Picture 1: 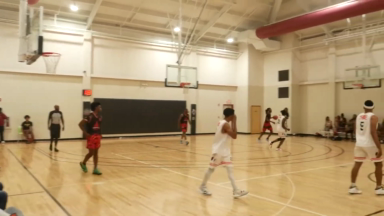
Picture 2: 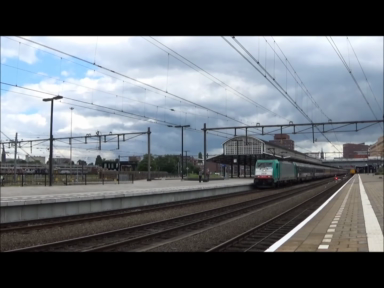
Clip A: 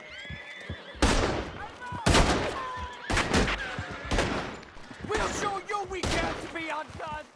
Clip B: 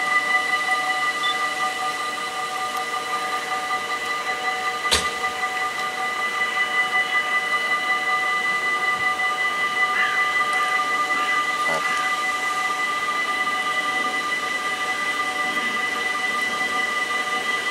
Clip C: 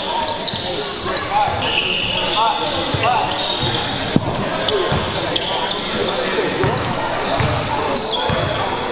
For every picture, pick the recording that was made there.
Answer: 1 C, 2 B